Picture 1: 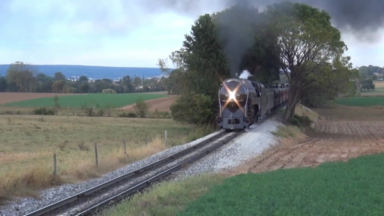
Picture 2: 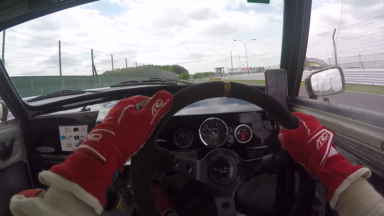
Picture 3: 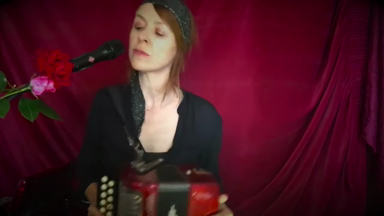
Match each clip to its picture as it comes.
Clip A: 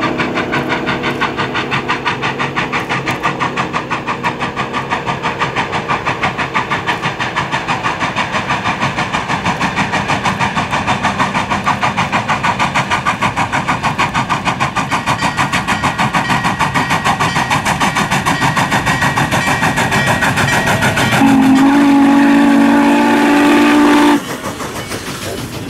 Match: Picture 1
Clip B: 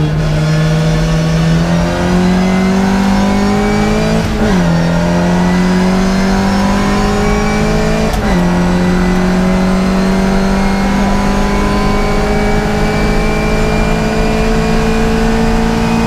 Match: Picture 2